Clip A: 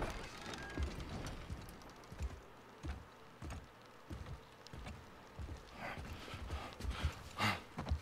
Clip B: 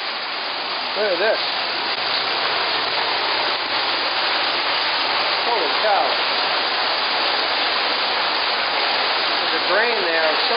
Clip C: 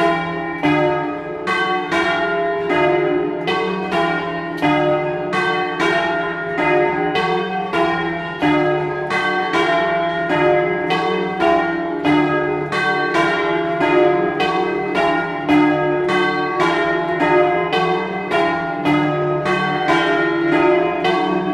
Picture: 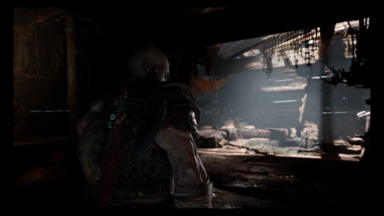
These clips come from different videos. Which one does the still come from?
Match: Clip A